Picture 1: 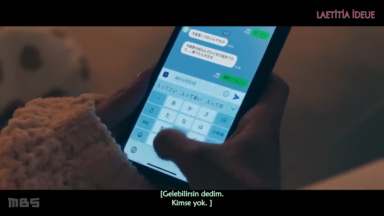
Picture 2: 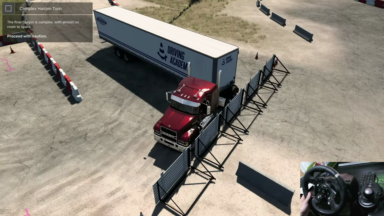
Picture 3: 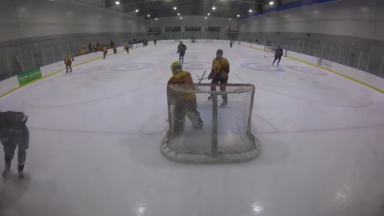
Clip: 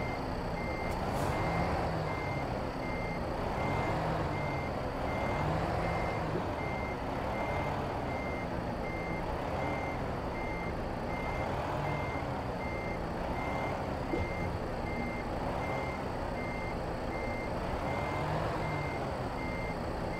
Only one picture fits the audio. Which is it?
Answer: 2